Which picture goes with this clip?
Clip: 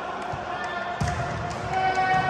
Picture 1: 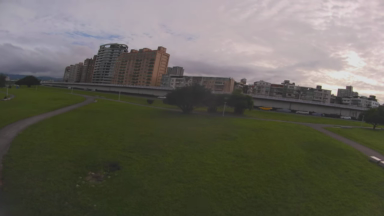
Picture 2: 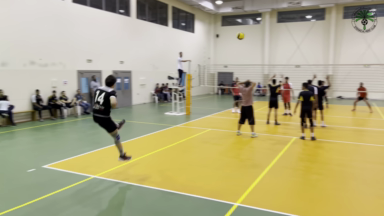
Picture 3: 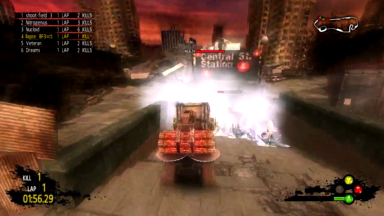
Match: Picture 2